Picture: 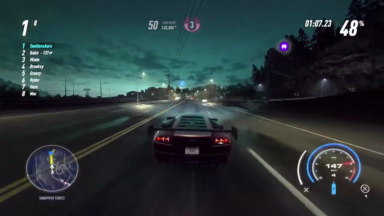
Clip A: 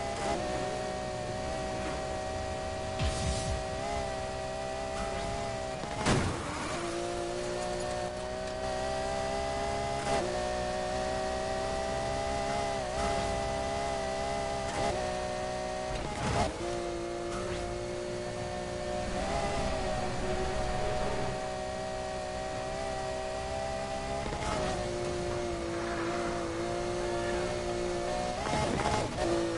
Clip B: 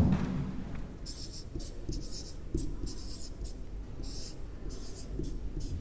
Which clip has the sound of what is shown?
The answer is A